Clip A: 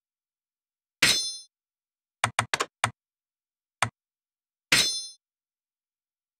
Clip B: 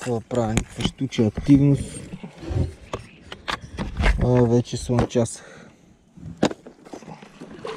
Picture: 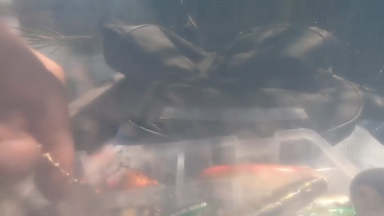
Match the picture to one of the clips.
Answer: B